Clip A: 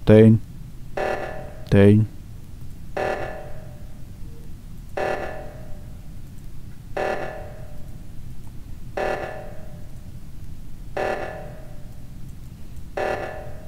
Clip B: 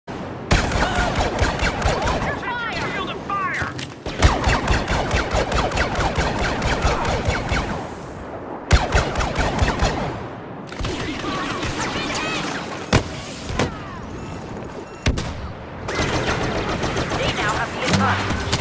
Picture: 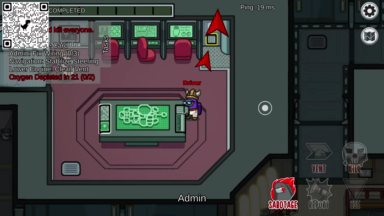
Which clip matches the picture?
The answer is A